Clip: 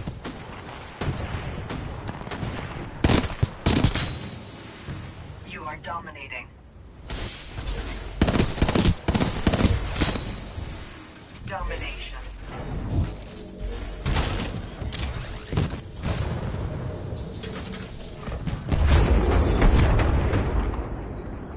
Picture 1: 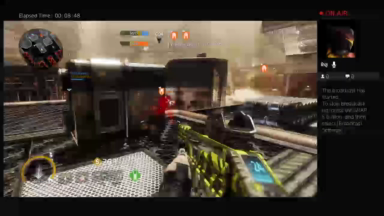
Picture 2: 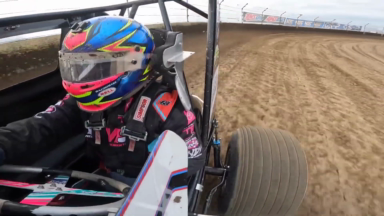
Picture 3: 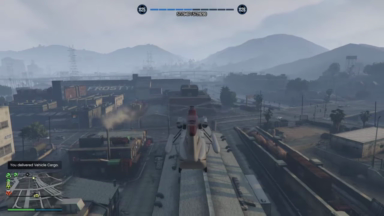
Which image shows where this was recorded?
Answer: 1